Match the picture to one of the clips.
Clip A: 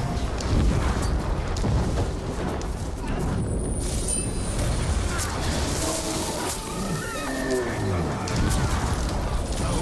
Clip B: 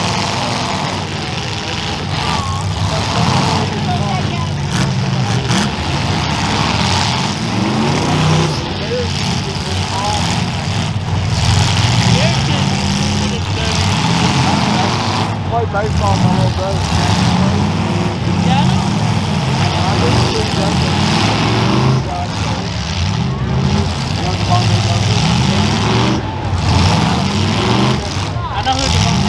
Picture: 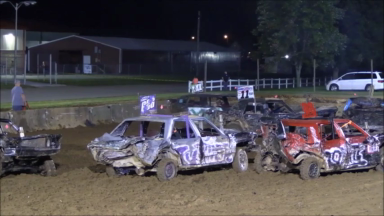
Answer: B